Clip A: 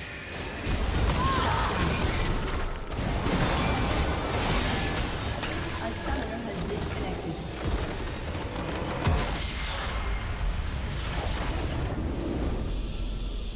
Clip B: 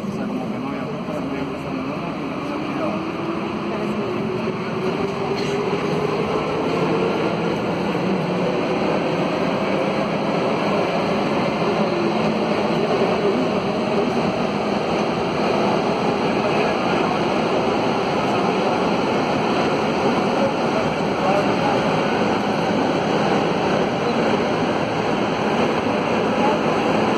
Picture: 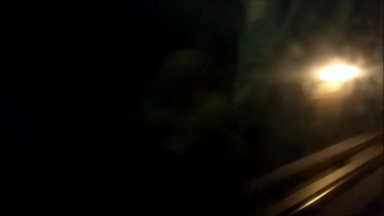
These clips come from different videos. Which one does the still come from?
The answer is B